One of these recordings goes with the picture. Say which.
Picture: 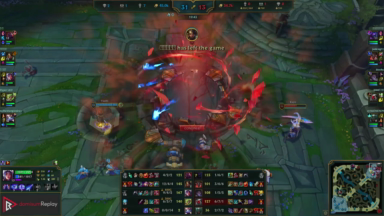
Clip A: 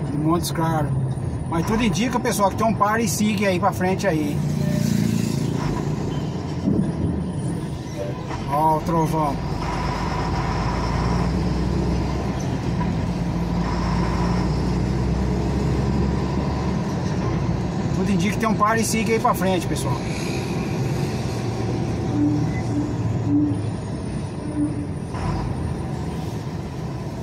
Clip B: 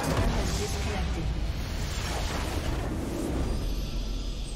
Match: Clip B